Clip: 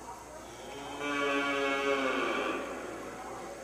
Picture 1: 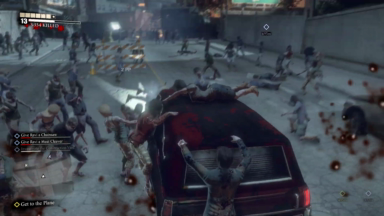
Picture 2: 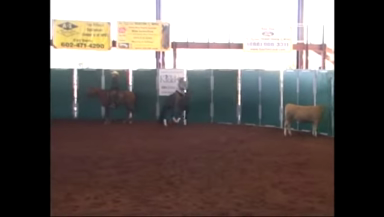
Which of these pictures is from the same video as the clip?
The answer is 2